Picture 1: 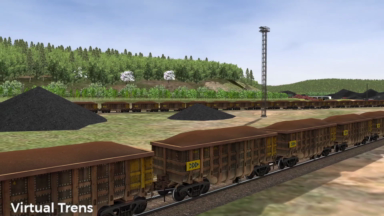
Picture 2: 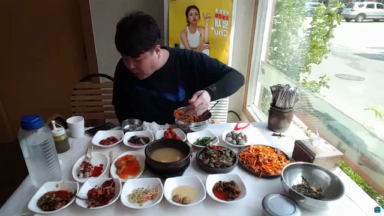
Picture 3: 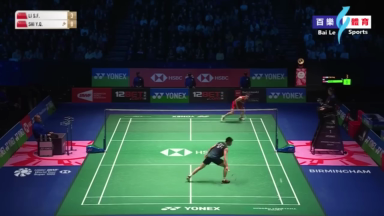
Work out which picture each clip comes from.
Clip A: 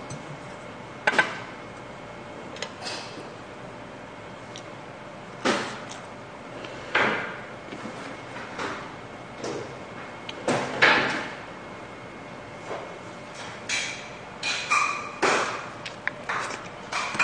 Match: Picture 2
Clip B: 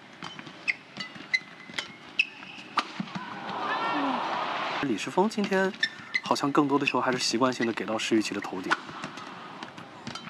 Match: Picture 3